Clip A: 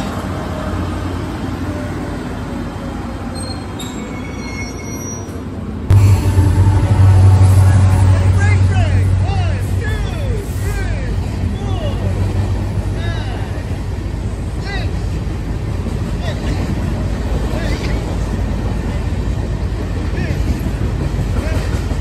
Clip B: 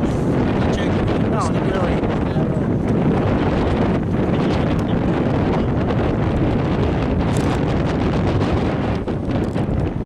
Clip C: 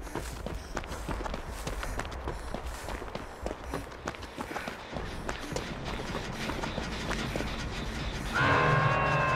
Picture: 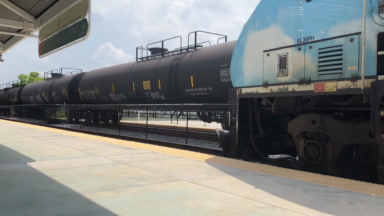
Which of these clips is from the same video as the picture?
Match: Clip A